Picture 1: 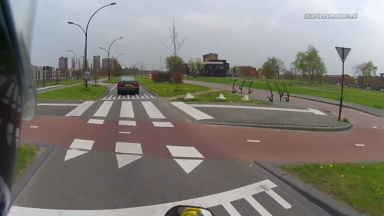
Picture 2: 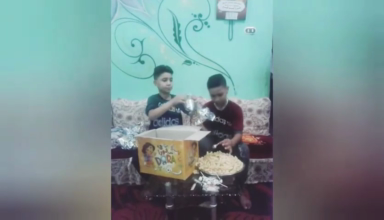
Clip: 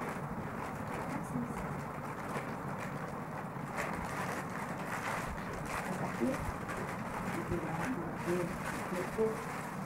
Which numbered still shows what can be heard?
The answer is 2